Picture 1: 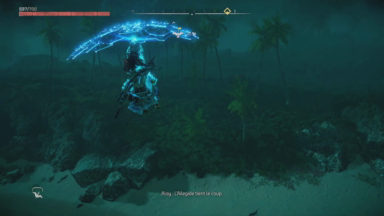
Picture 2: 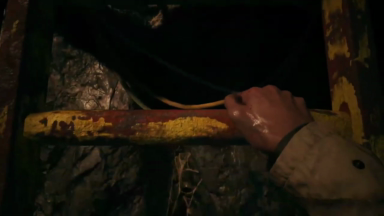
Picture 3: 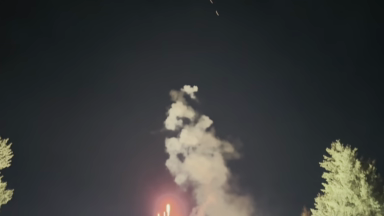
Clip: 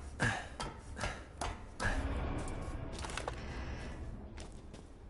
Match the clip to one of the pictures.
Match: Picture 2